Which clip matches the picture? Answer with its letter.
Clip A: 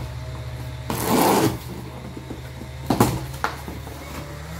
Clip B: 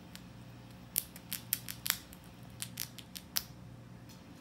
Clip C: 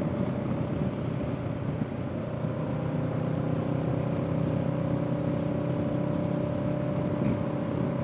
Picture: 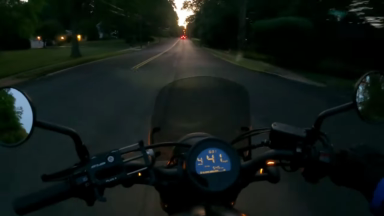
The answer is C